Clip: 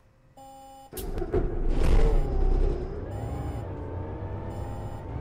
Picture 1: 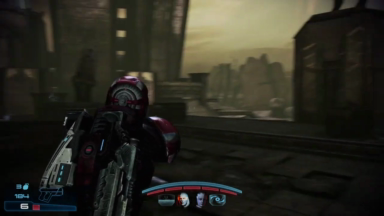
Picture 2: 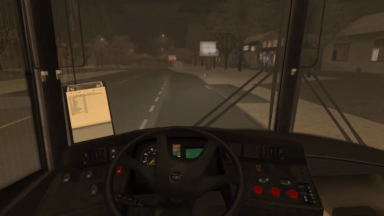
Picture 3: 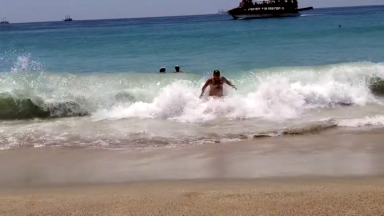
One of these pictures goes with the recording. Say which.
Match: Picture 2